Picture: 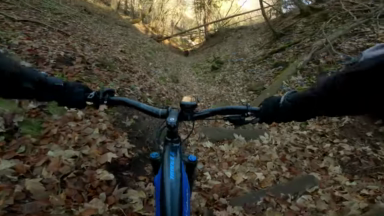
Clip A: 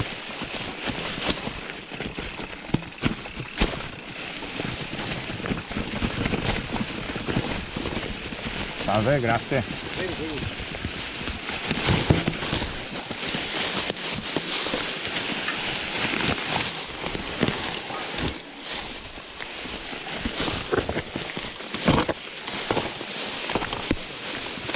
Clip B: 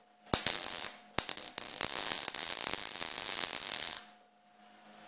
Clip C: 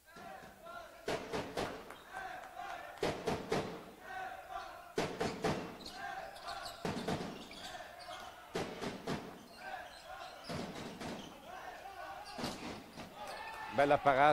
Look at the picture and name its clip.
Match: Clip A